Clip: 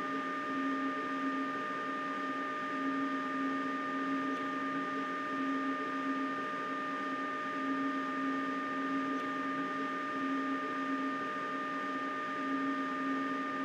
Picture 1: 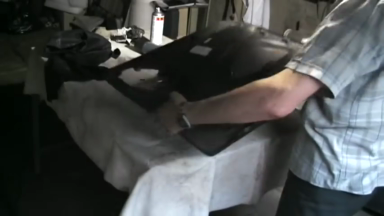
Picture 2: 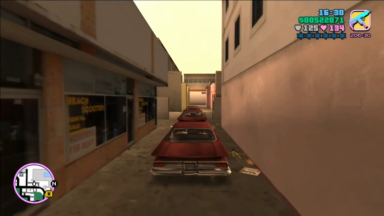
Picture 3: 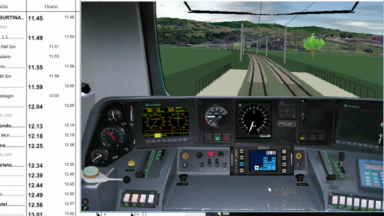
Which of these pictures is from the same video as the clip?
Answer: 3